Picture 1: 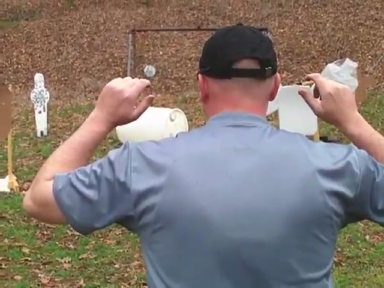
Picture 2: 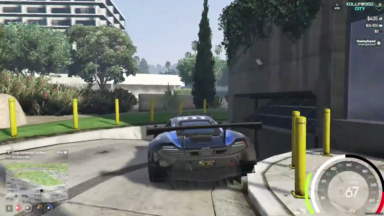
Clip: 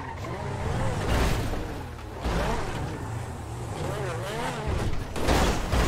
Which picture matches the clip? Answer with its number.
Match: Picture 2